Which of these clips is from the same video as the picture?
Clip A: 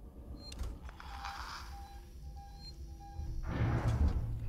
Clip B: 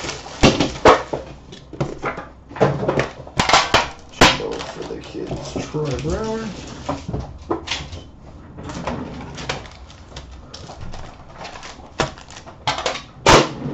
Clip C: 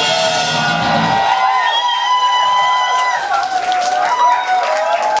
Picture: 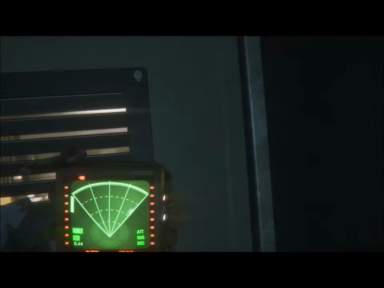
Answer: A